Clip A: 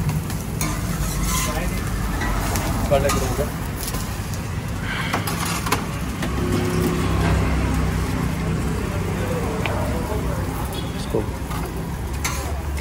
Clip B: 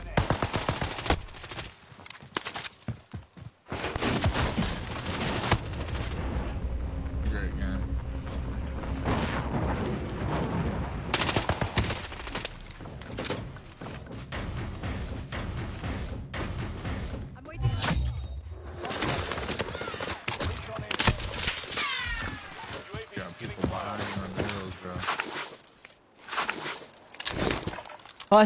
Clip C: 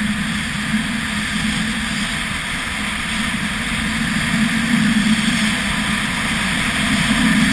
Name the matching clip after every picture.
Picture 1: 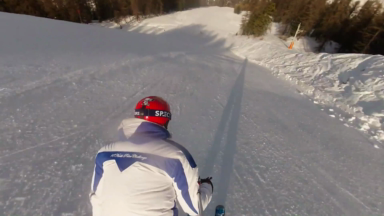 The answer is C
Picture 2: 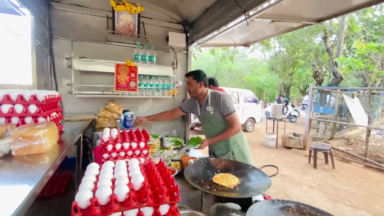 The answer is A